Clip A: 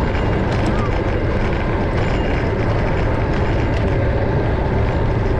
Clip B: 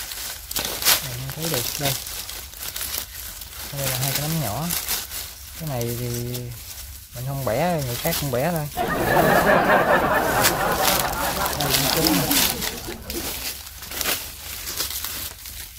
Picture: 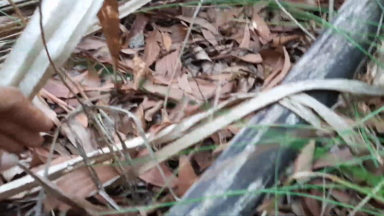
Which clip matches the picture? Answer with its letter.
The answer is B